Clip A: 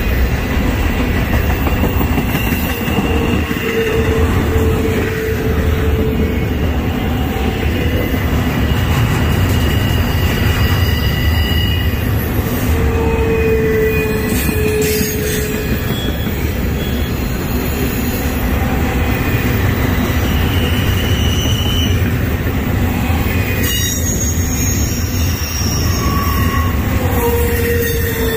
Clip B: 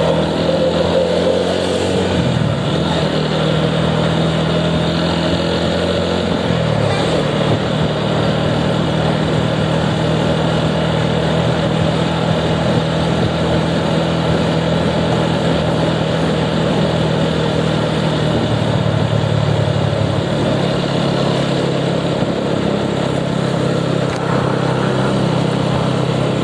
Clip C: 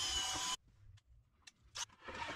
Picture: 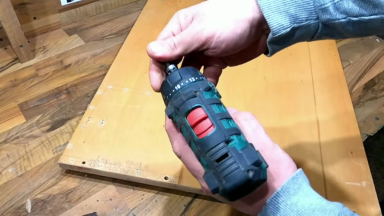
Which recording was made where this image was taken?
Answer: C